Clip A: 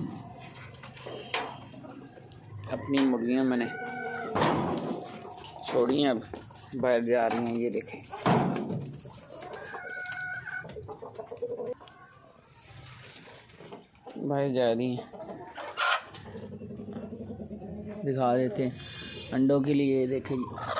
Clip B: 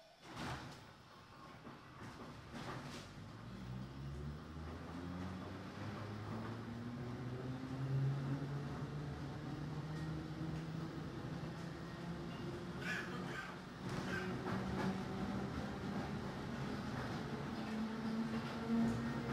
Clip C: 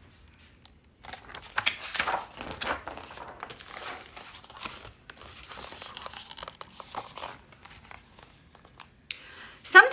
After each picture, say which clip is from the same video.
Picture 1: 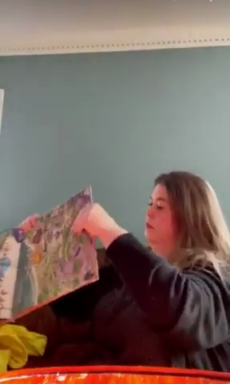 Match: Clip C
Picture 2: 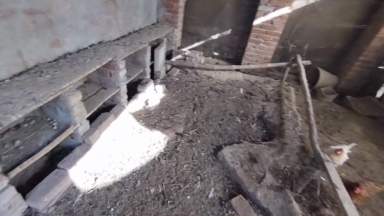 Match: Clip A